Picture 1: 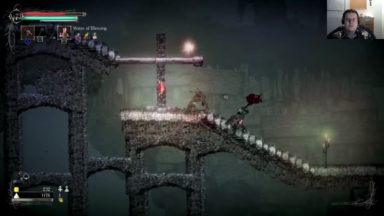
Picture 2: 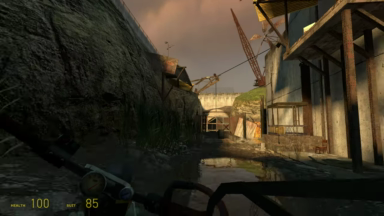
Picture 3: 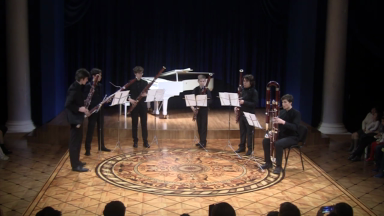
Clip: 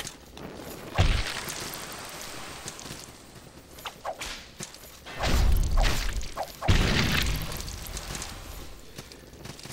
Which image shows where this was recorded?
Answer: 1